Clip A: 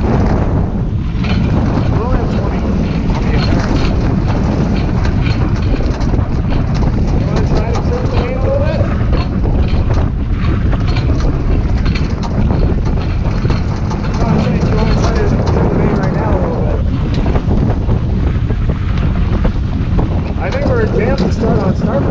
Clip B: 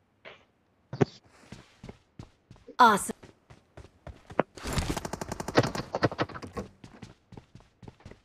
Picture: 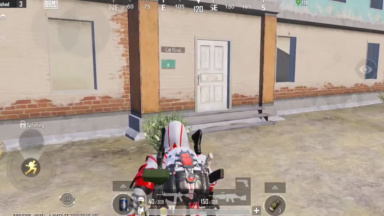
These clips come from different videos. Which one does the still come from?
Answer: B